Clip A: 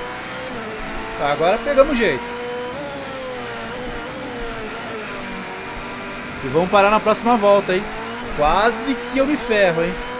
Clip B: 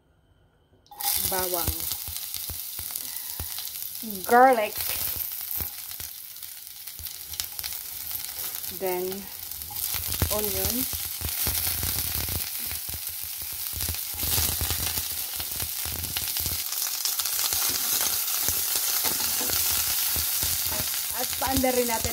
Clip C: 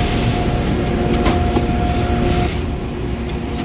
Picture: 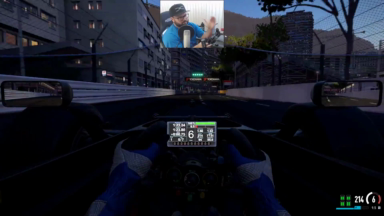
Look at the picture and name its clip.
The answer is A